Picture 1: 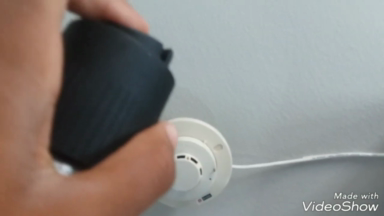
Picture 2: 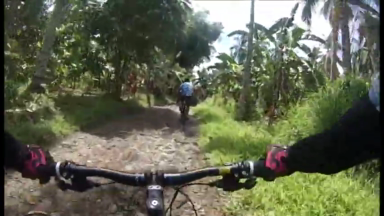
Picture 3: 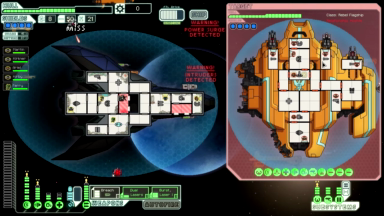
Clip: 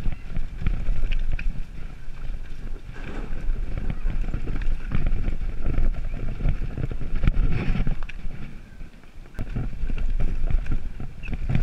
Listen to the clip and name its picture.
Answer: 2